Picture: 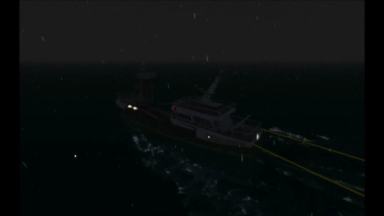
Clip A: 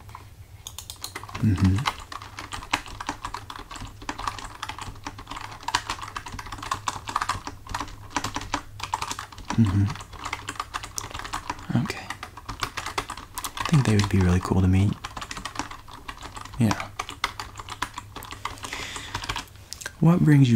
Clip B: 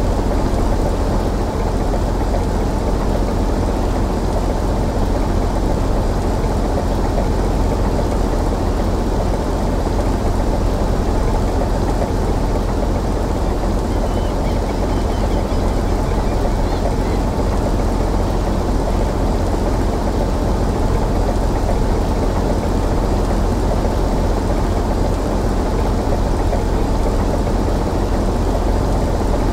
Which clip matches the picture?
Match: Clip B